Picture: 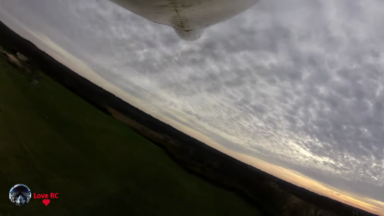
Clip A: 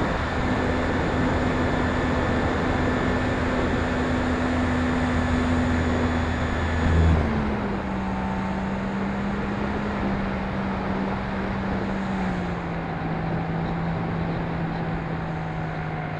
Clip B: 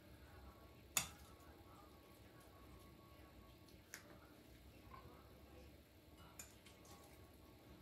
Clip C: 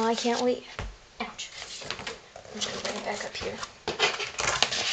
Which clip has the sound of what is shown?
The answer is A